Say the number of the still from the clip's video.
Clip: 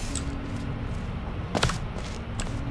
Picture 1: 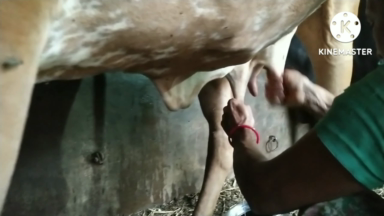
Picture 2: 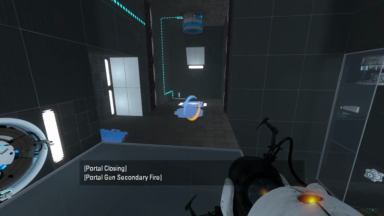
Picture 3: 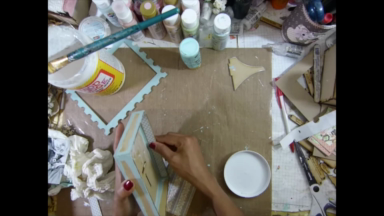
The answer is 2